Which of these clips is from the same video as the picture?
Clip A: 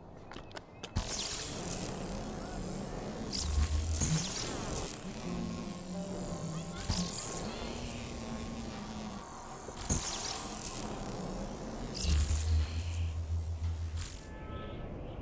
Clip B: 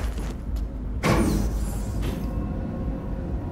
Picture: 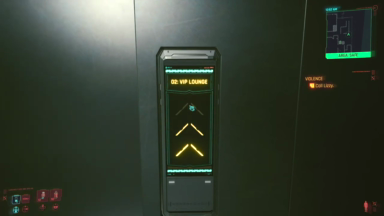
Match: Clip B